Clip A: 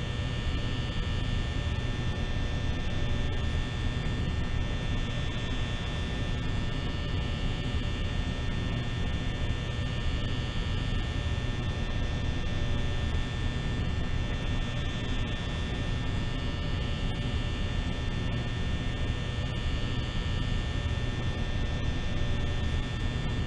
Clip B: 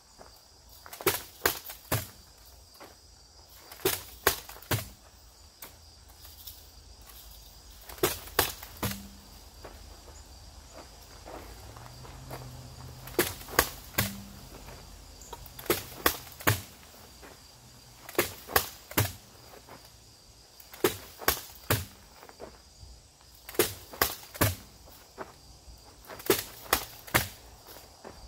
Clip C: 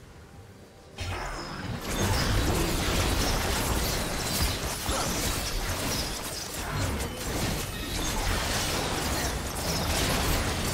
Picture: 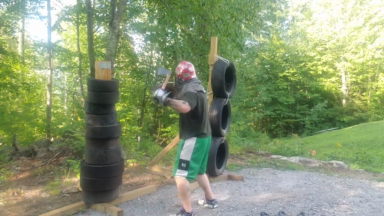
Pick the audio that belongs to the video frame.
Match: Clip B